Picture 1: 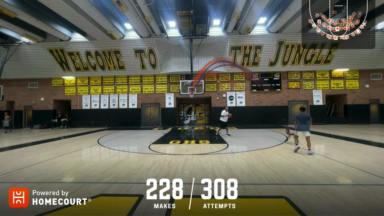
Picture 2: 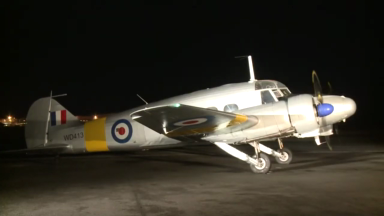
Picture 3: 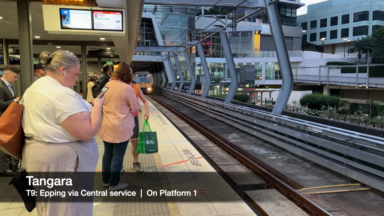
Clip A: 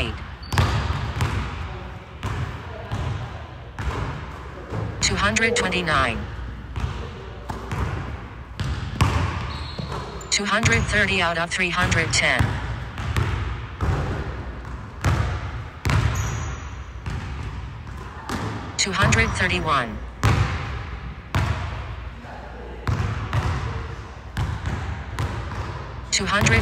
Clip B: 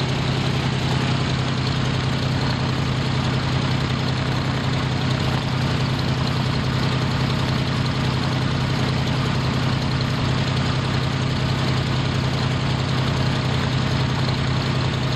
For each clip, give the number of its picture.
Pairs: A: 1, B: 2